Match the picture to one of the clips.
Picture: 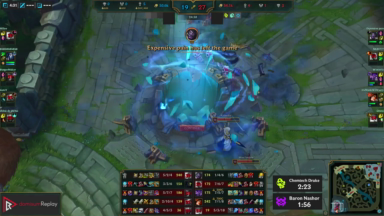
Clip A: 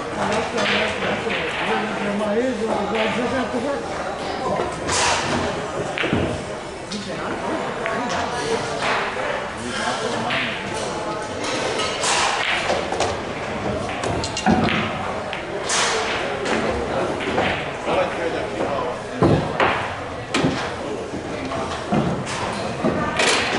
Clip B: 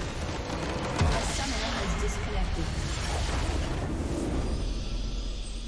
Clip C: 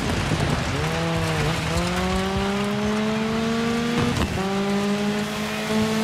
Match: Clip B